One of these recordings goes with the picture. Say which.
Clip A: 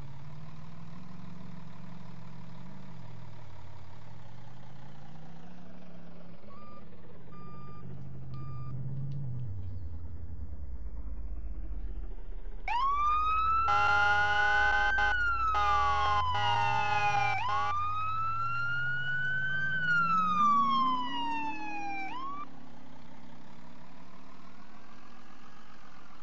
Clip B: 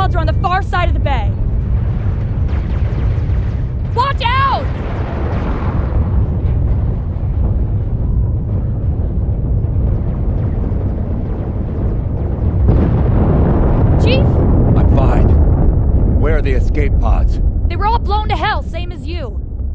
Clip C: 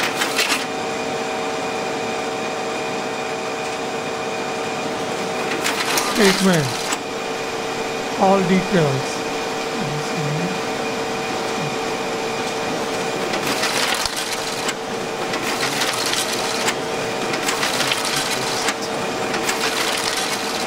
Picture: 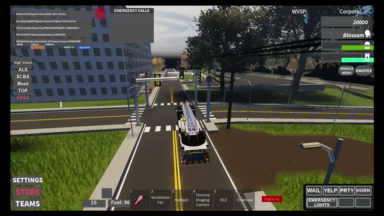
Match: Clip A